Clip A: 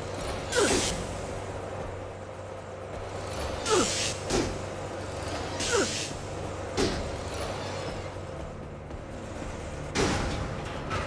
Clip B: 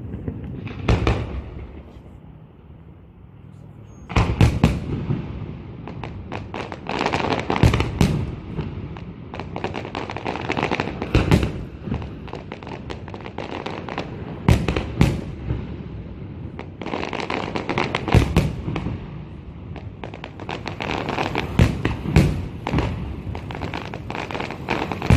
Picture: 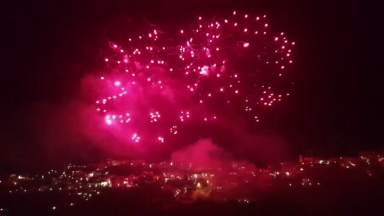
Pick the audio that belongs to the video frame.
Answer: B